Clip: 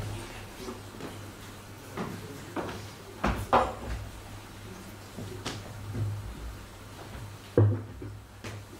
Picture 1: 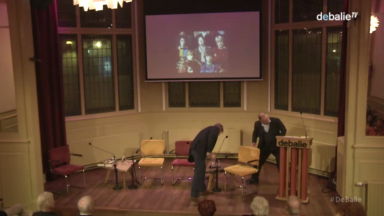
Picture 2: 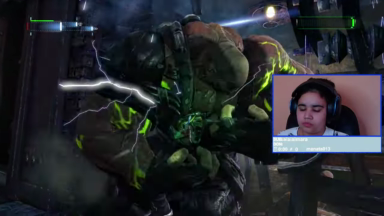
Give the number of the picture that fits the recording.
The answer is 1